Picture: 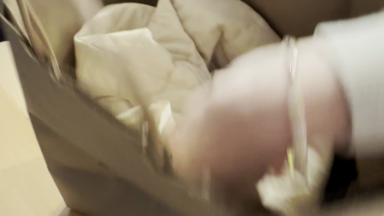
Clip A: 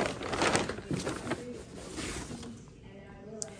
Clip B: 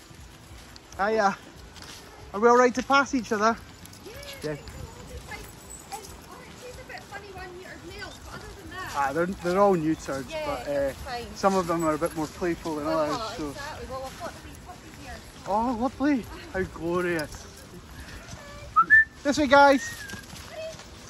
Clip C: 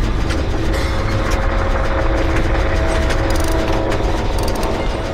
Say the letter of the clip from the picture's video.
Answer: A